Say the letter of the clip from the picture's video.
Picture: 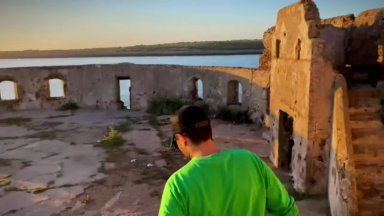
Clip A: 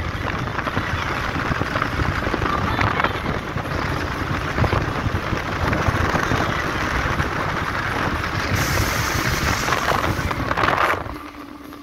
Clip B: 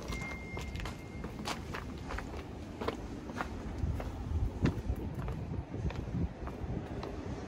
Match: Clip B